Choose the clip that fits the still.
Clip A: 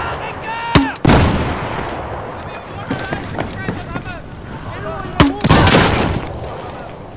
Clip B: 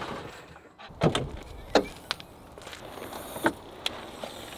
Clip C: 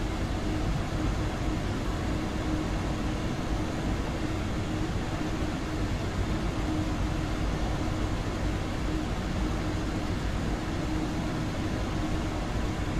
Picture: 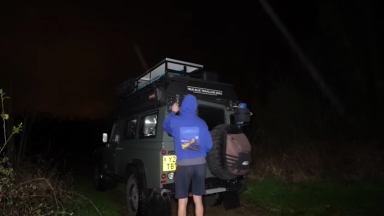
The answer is B